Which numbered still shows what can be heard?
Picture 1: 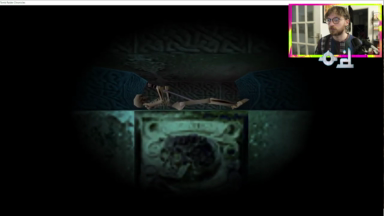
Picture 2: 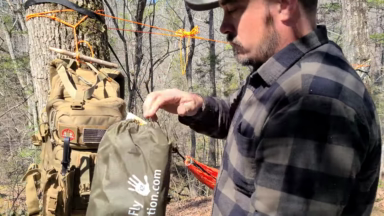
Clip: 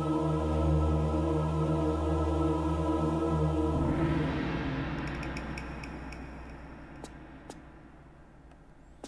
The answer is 1